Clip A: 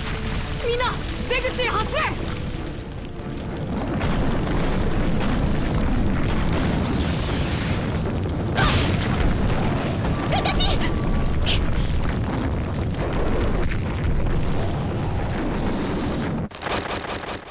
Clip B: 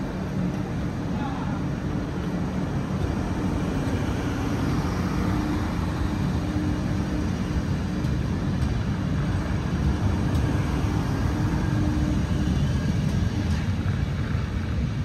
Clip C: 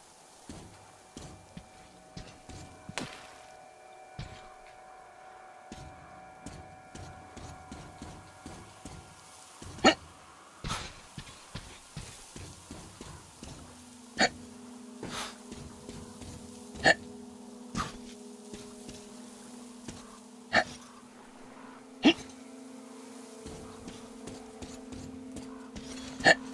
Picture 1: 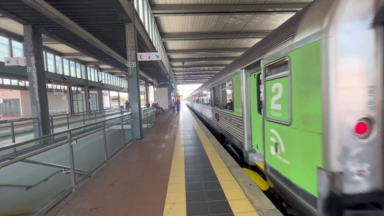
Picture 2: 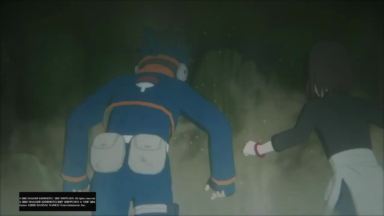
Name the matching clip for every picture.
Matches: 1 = B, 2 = A